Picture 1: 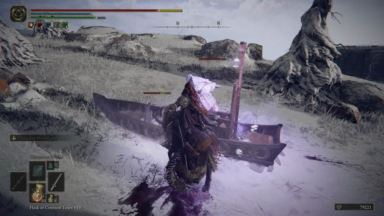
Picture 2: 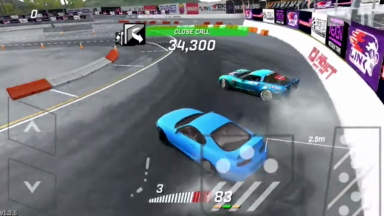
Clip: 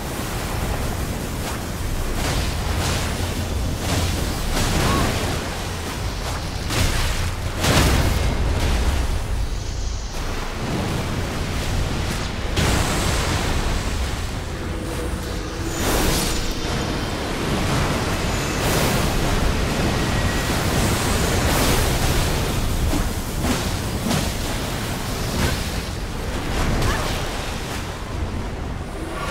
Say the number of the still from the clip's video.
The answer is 1